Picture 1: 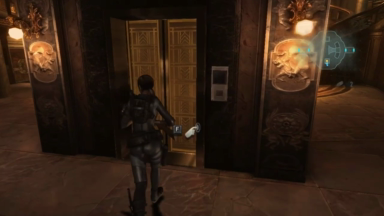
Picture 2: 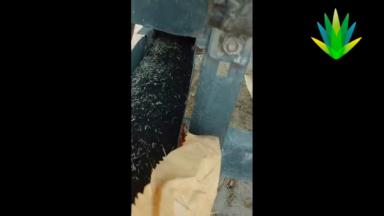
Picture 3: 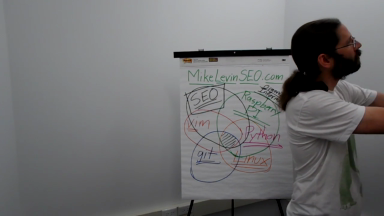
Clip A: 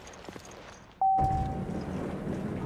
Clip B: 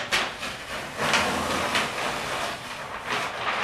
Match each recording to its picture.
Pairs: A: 1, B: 3